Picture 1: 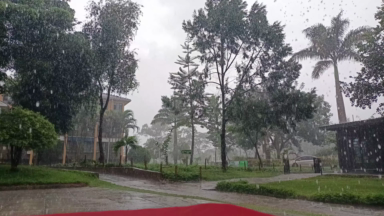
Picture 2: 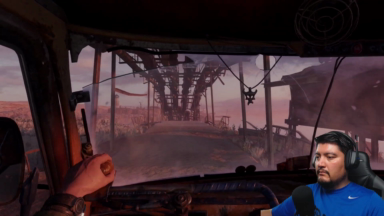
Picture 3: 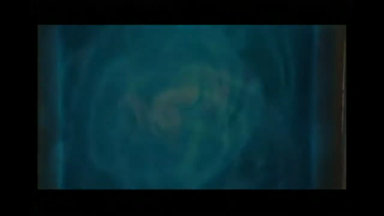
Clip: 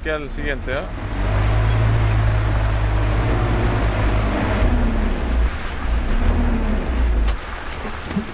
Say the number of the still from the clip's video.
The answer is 2